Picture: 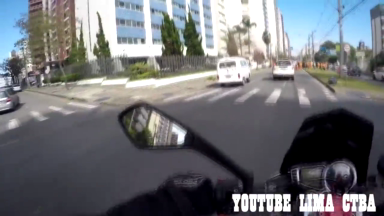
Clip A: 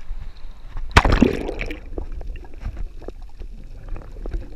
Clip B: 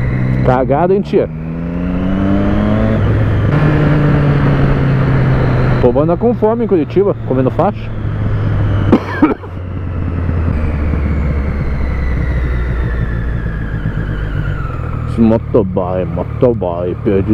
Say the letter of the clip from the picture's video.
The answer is B